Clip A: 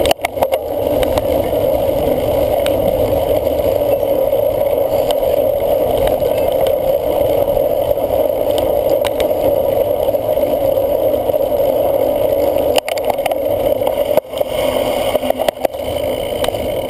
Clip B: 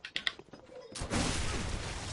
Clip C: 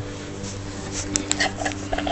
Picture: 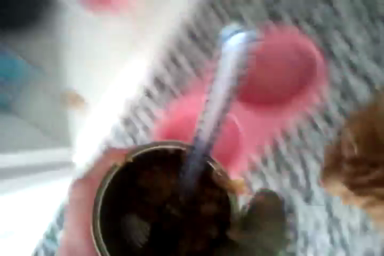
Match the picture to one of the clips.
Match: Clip C